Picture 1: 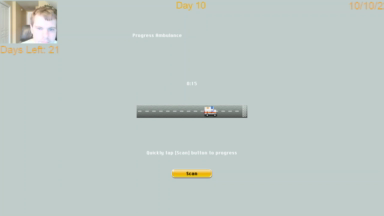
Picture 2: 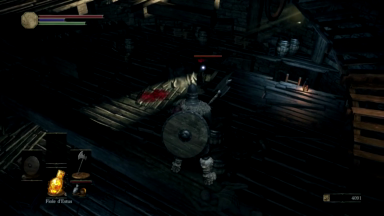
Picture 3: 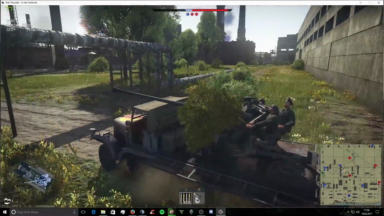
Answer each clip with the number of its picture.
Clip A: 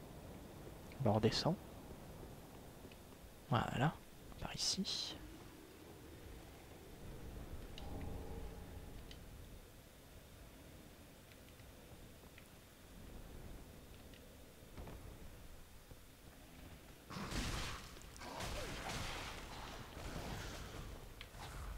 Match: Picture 2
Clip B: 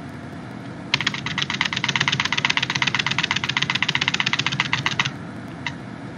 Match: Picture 1